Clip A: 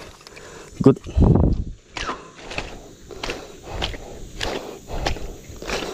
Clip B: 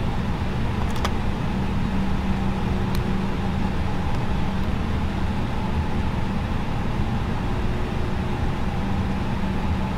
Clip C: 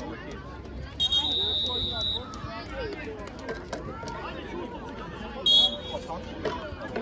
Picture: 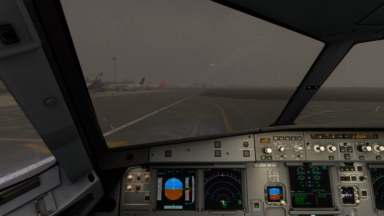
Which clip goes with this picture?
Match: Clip B